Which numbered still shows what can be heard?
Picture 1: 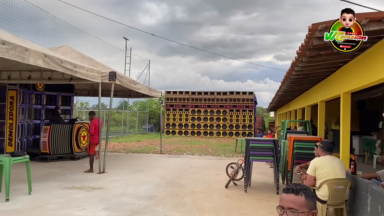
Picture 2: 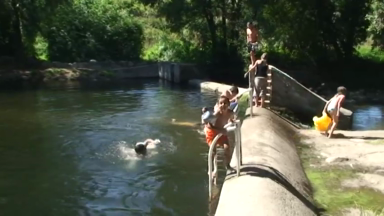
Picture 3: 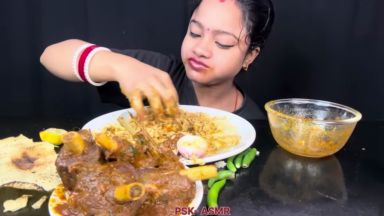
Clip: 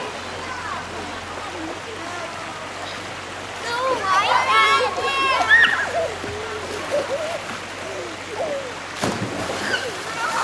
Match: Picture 2